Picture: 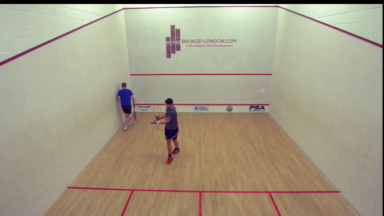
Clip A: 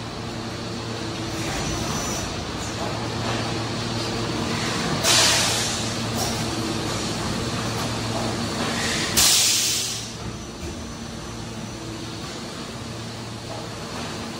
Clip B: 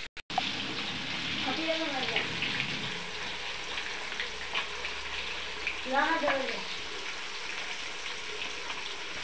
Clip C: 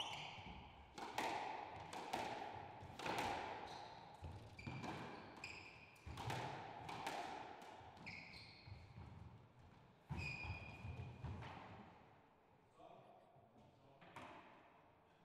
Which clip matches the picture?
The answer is C